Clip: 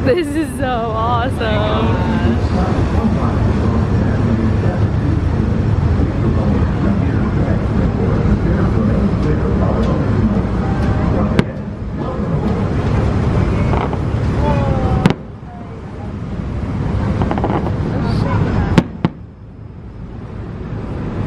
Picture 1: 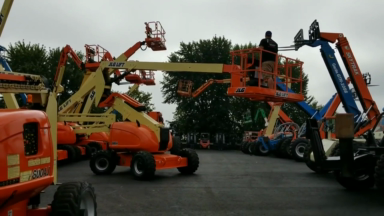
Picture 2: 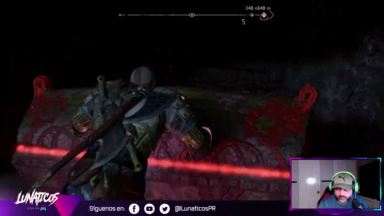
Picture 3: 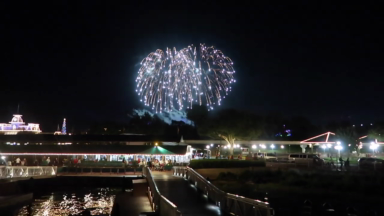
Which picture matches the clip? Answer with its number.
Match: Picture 3